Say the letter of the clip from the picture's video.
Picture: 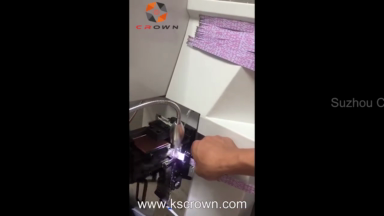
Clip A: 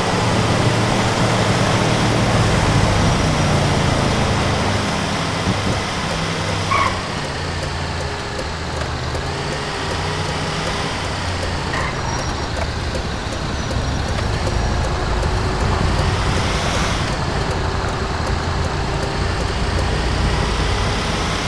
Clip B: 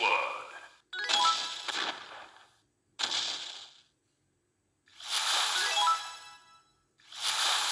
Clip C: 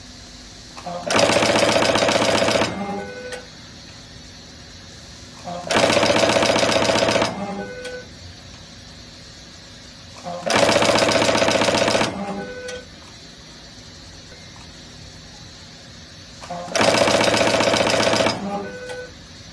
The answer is C